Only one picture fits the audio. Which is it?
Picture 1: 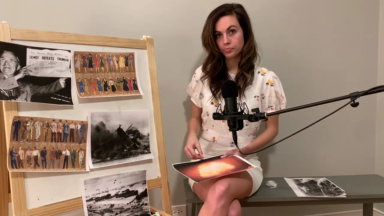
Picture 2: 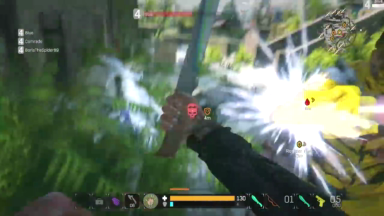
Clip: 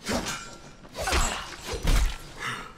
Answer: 2